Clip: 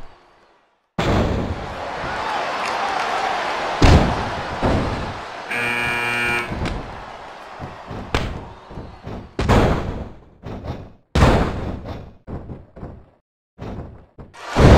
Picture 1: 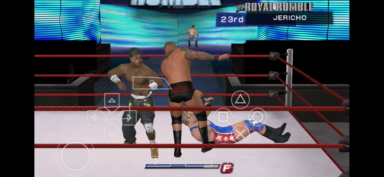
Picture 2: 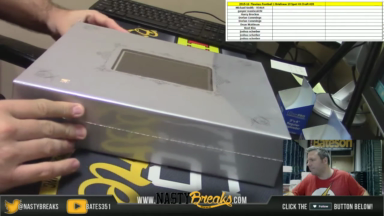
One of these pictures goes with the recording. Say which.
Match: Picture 1